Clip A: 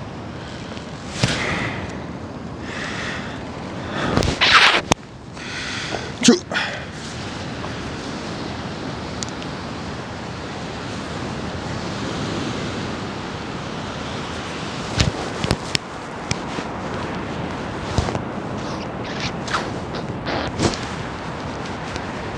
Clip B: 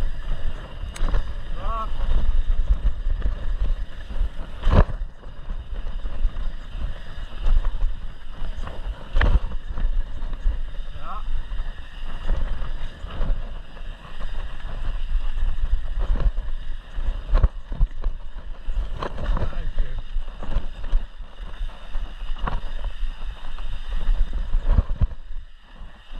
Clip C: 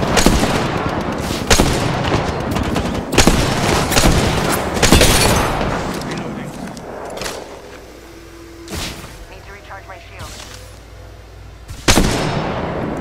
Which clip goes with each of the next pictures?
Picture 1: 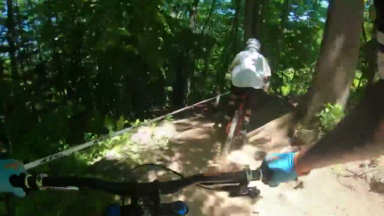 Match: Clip B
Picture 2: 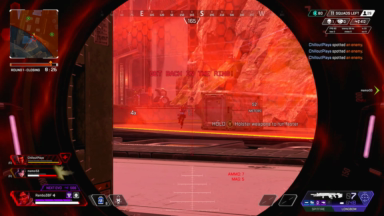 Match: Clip C